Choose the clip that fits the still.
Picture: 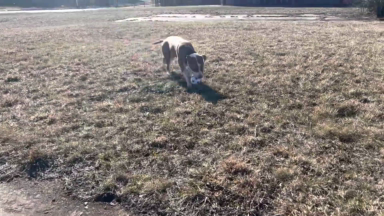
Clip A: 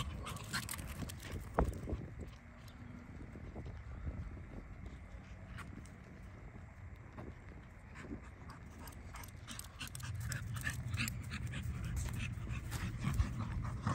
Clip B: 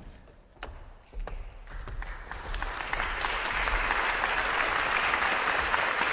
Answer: A